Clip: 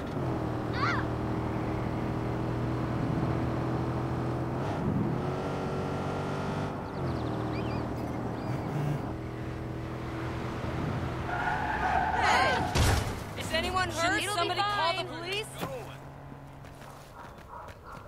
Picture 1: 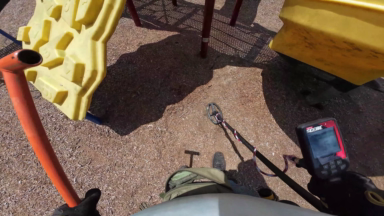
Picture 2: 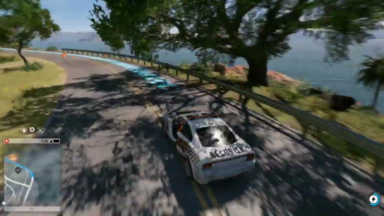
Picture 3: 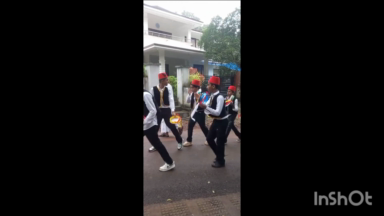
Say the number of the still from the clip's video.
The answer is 2